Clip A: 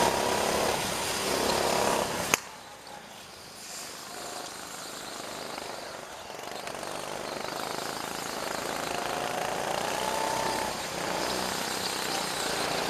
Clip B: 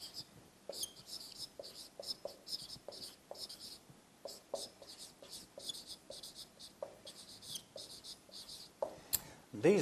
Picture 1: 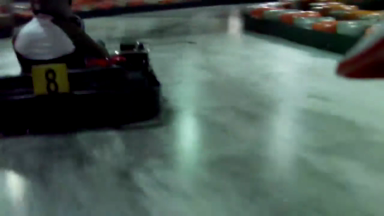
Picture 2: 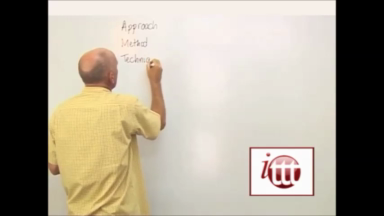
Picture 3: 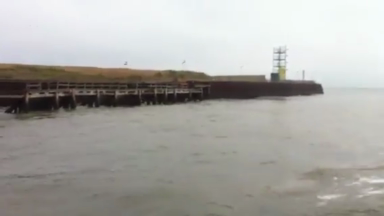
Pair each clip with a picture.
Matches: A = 1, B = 2